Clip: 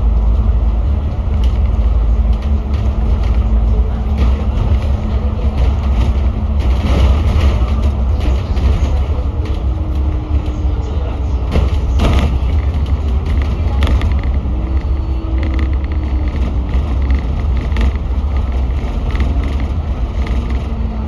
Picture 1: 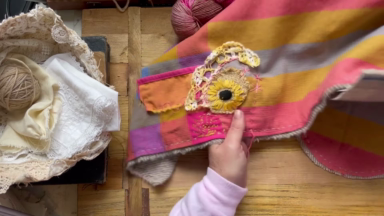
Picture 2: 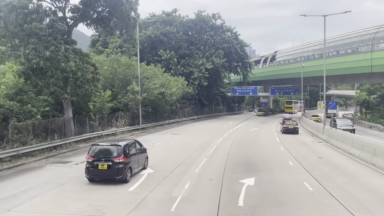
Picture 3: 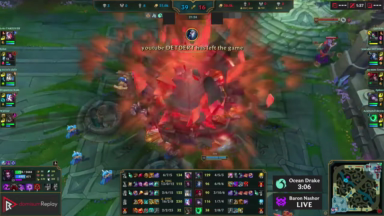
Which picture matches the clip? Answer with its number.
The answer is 2